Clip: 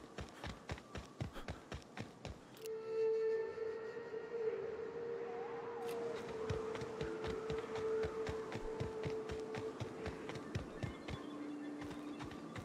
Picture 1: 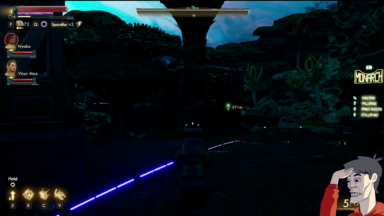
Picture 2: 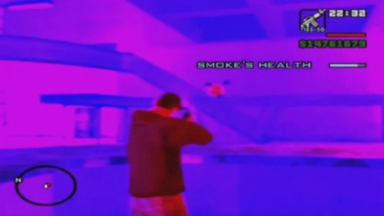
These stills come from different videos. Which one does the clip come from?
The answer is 1